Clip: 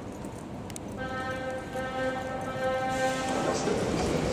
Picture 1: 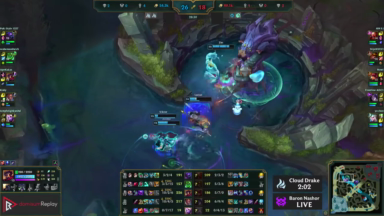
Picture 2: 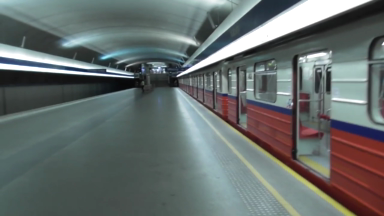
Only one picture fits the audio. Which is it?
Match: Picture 2